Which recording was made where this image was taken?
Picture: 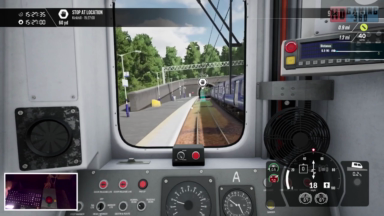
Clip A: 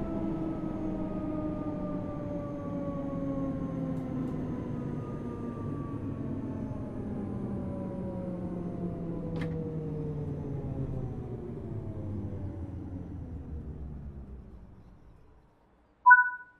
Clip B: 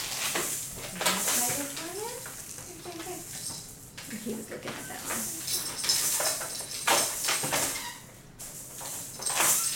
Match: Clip A